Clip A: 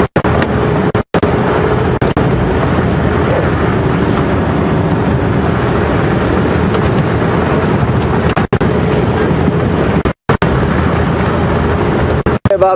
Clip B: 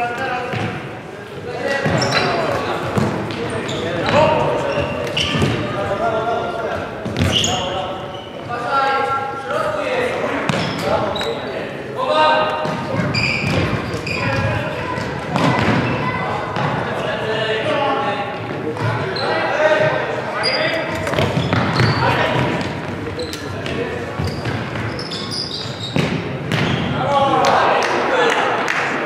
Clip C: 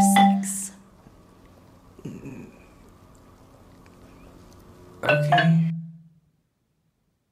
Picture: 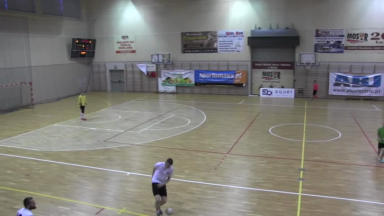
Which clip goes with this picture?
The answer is B